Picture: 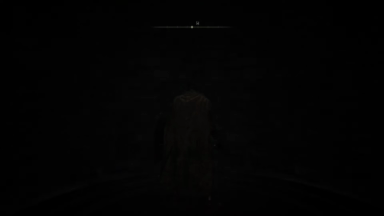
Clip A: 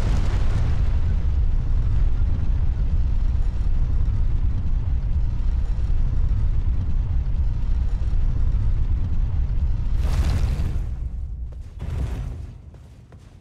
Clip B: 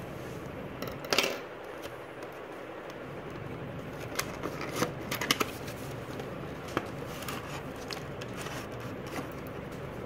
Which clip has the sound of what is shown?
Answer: A